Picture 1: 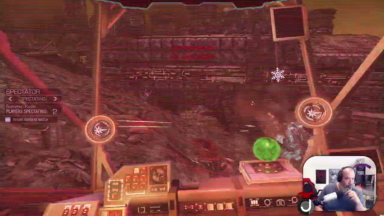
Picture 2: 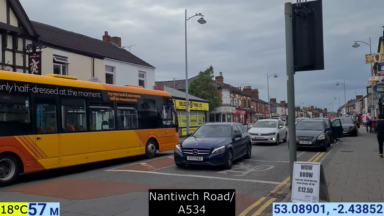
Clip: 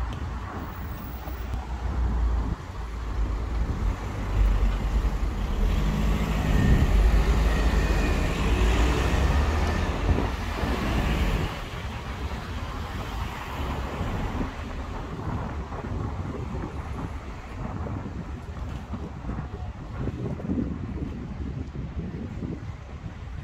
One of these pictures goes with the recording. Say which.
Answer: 2